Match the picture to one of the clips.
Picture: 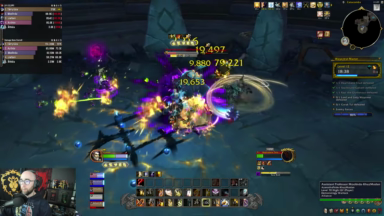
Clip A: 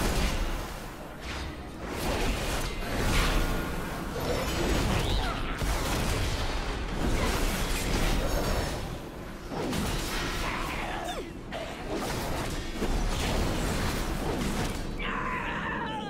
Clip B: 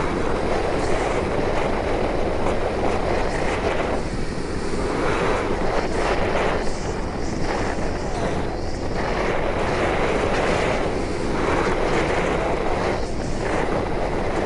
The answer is A